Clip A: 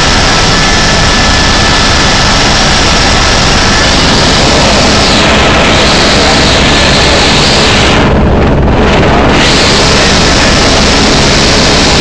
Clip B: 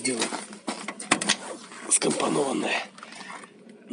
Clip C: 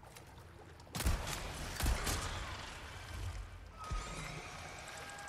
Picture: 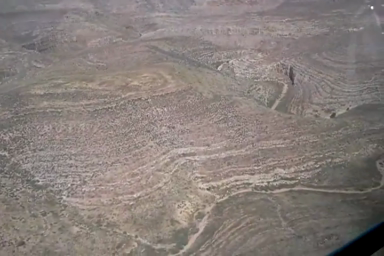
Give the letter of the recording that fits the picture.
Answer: A